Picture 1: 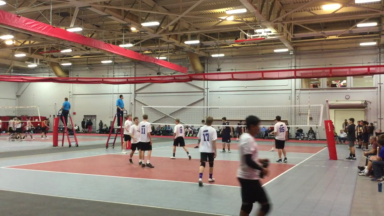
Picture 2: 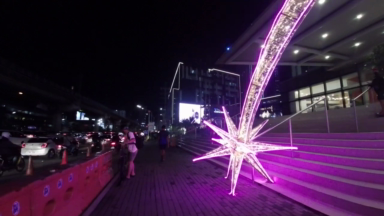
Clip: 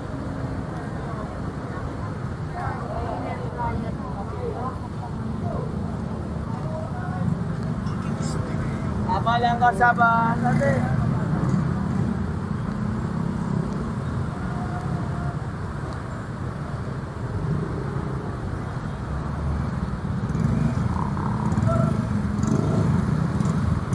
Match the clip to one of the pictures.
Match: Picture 2